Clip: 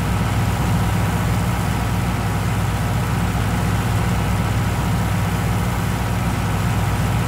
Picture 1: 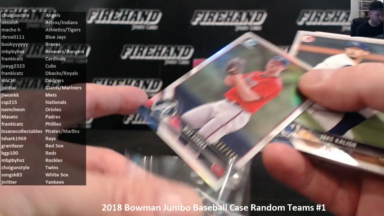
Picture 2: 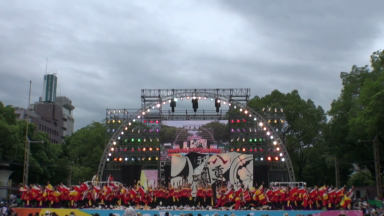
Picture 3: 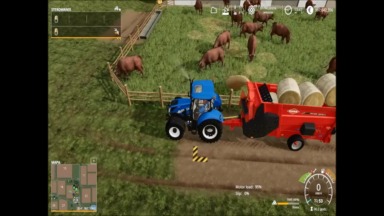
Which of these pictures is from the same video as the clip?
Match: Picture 3